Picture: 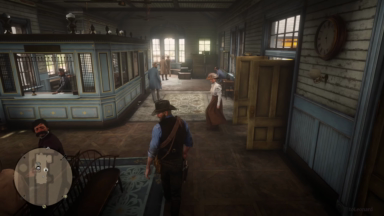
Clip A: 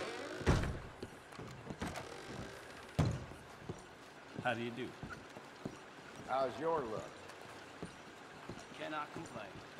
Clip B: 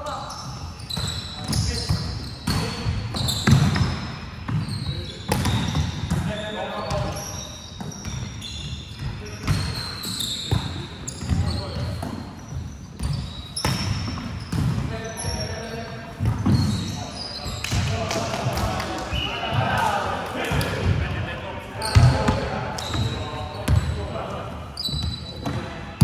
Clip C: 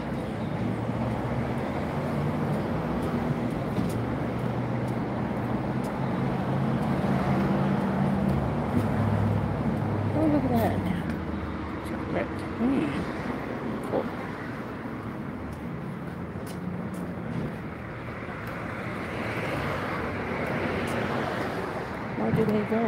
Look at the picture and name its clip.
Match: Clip A